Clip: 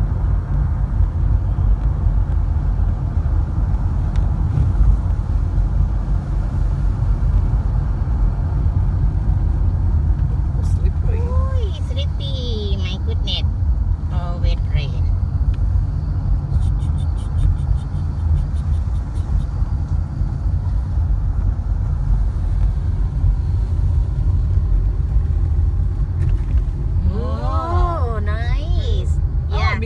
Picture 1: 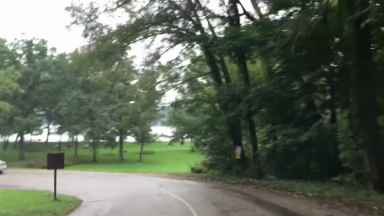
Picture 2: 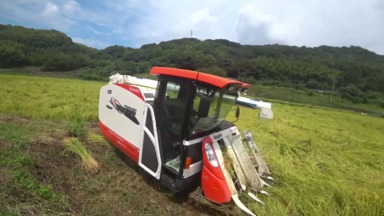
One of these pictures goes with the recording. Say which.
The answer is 1